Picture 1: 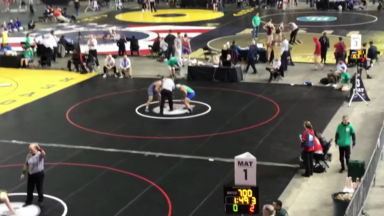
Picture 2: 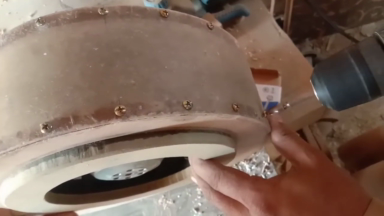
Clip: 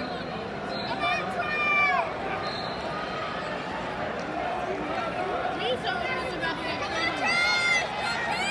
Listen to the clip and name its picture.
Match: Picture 1